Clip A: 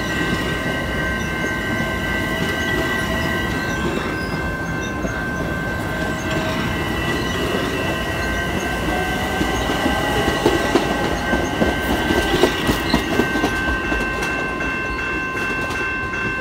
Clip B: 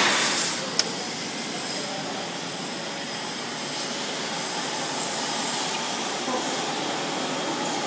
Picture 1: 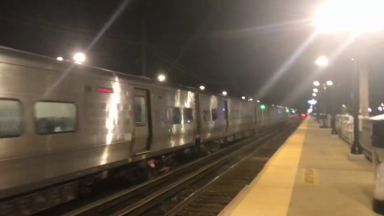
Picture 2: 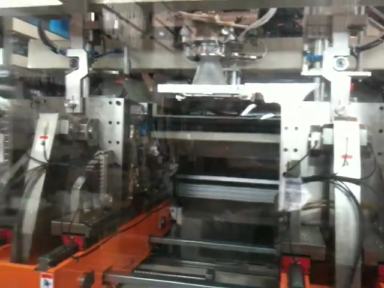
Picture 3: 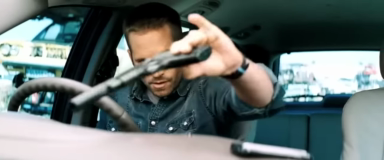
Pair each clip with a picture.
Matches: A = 1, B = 2